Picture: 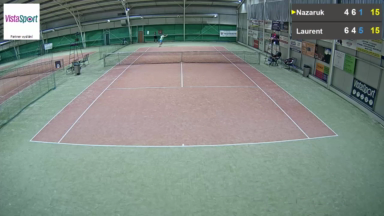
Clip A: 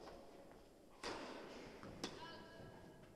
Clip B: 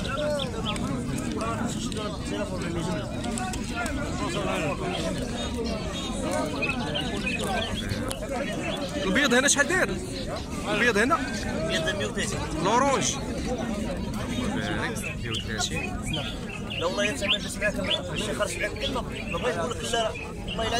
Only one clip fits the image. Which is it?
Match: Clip A